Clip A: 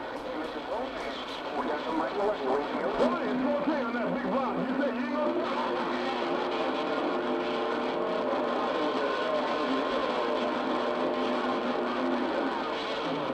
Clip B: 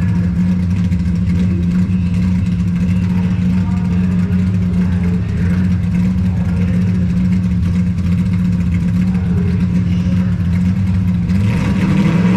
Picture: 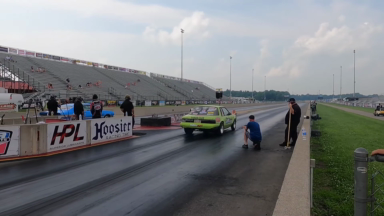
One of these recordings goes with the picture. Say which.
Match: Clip B